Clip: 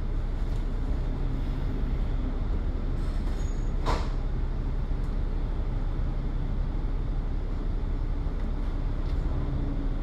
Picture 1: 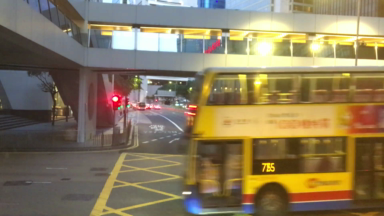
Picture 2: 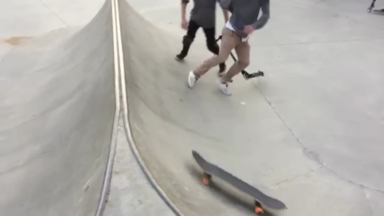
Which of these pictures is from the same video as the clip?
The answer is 1